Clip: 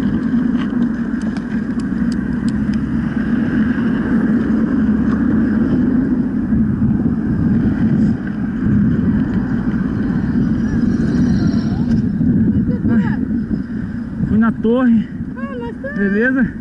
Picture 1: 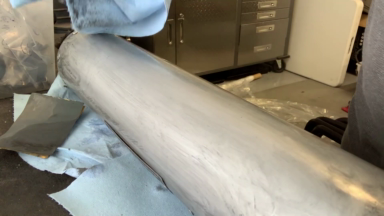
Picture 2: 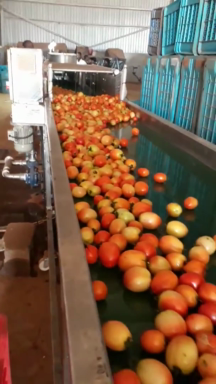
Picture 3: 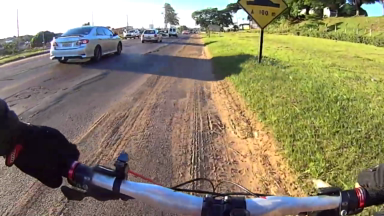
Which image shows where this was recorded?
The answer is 3